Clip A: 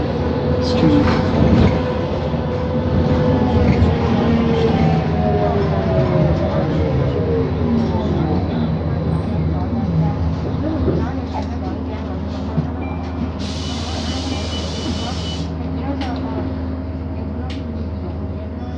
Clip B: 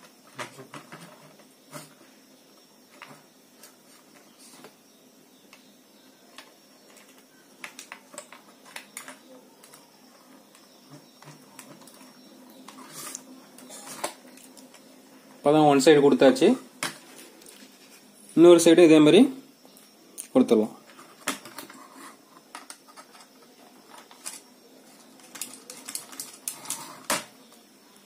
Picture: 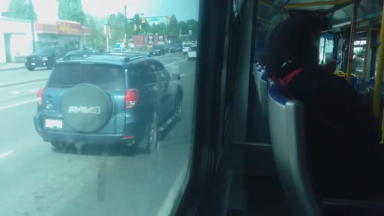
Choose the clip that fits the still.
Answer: A